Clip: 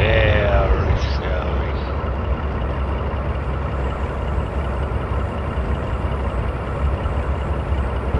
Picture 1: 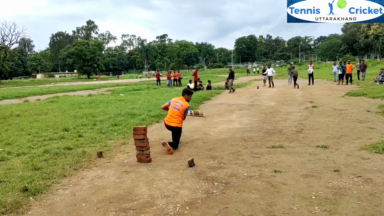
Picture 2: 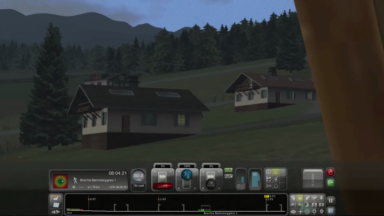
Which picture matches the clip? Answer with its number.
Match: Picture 2